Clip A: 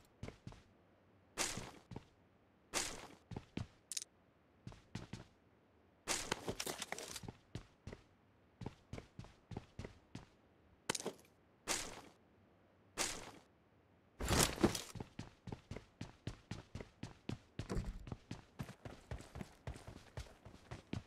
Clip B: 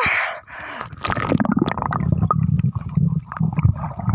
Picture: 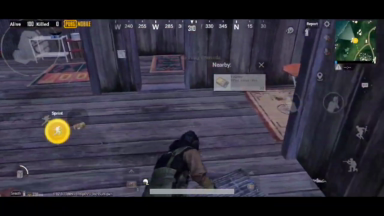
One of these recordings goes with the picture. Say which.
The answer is A